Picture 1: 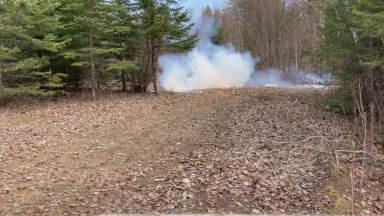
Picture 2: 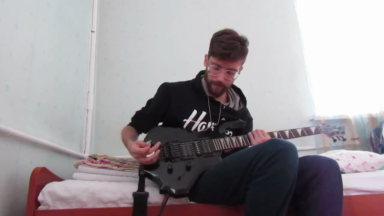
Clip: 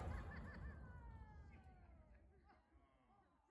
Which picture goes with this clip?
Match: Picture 1